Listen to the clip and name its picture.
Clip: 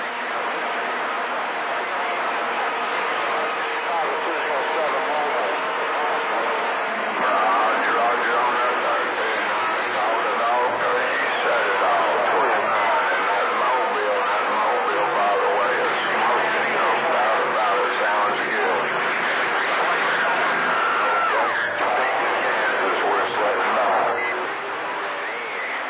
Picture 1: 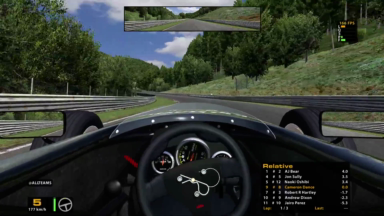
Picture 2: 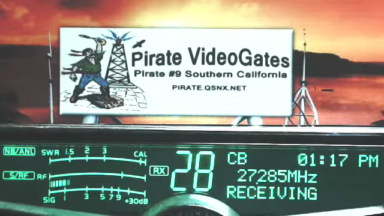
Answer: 2